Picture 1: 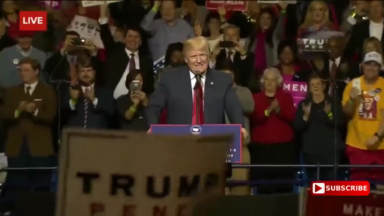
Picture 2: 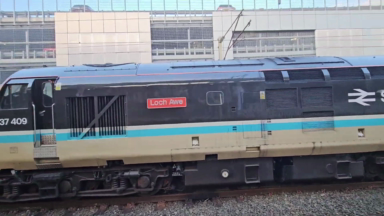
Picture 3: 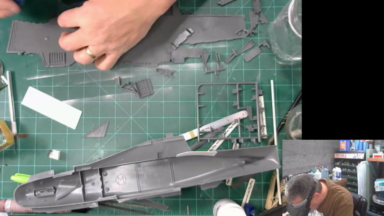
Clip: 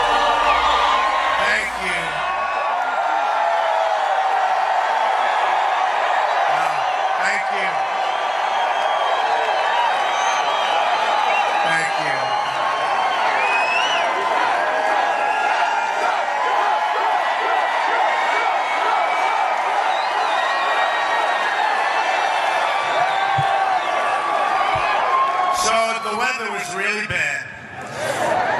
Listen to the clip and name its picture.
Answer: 1